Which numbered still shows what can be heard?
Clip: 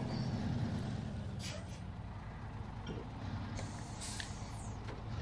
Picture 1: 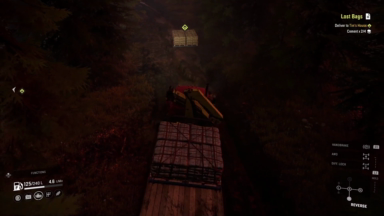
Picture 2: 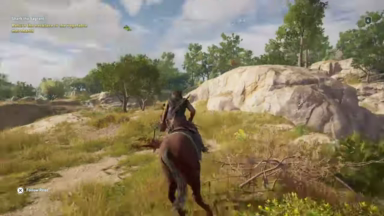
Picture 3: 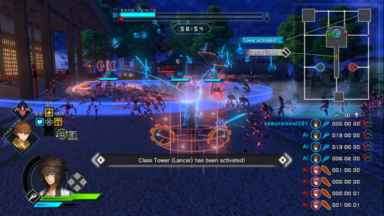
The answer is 1